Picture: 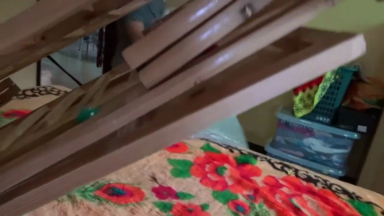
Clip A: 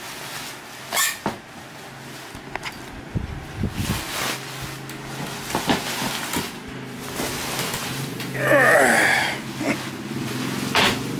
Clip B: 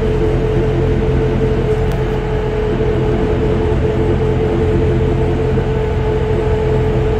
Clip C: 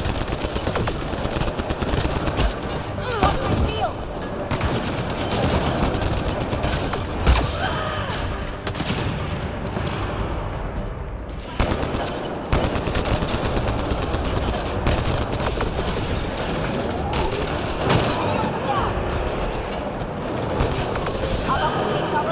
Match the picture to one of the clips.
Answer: A